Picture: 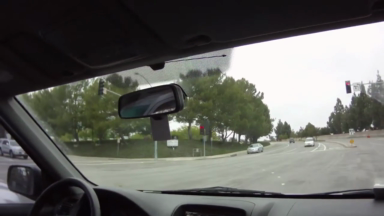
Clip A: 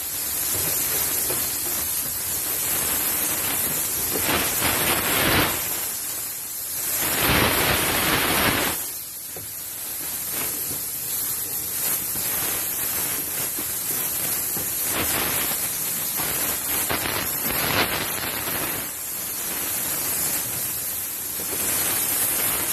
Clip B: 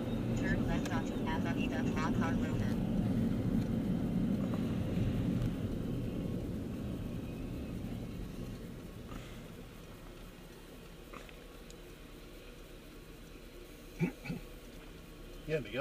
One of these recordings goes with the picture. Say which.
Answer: B